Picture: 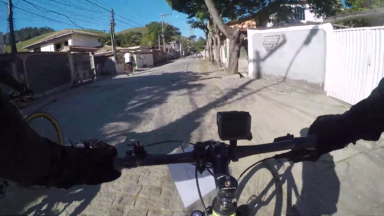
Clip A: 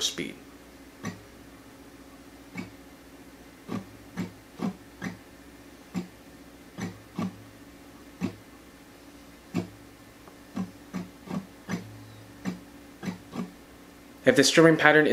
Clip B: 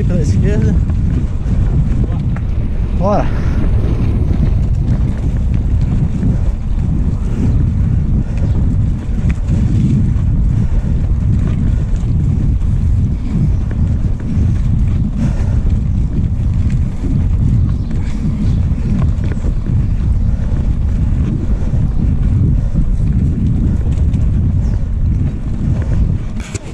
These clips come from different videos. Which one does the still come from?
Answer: B